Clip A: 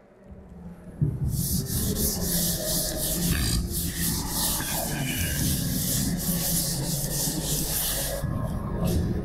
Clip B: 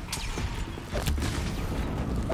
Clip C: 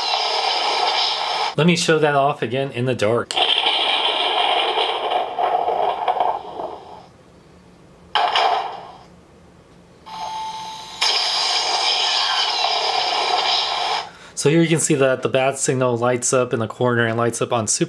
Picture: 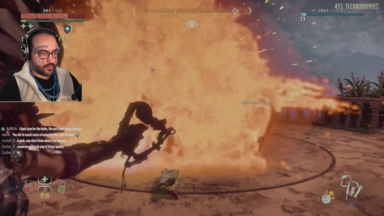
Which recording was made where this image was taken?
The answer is B